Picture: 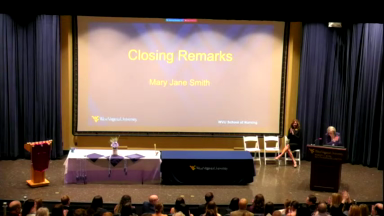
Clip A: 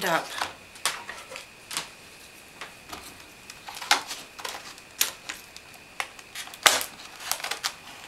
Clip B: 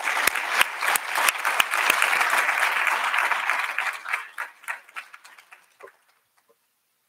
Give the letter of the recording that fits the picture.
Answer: B